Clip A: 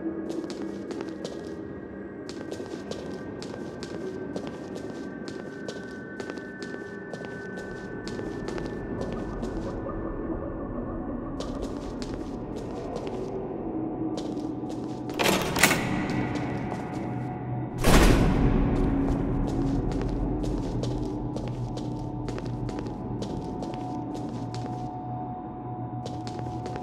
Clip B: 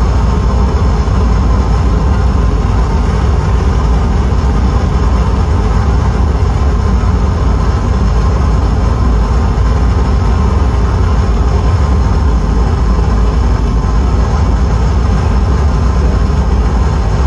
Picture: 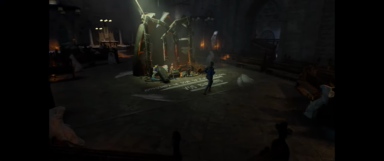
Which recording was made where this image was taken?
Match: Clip A